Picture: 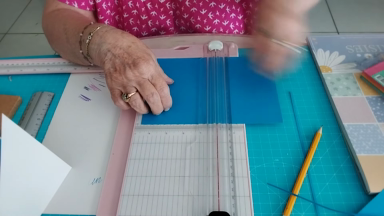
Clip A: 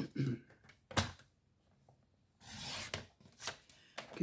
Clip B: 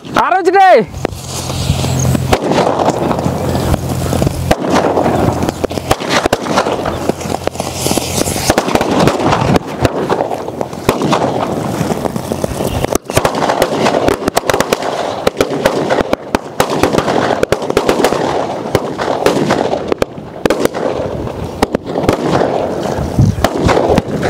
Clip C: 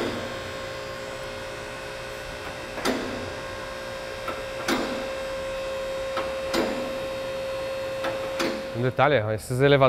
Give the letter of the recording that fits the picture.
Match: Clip A